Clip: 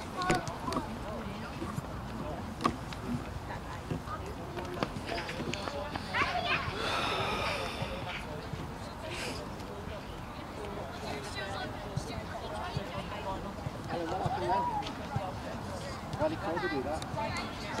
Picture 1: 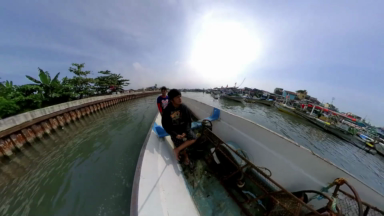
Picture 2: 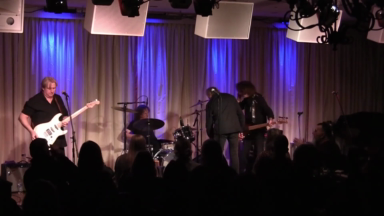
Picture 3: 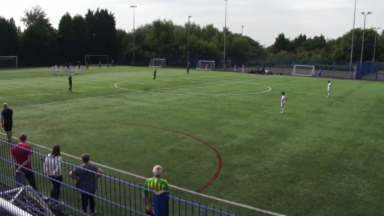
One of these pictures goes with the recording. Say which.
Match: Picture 3